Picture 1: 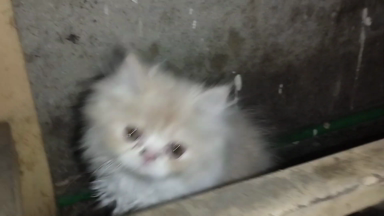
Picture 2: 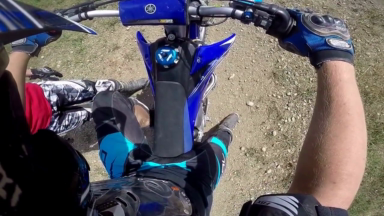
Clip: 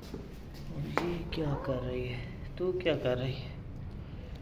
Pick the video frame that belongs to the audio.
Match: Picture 1